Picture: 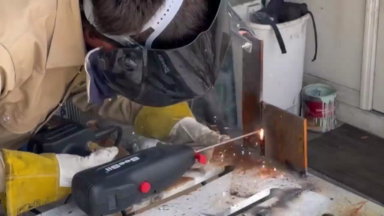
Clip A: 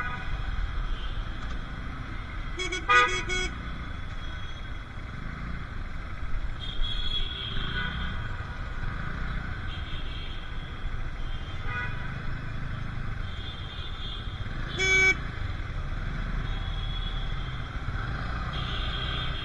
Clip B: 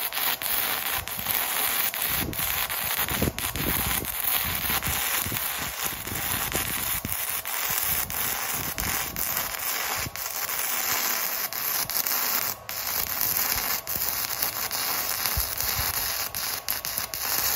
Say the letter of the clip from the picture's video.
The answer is B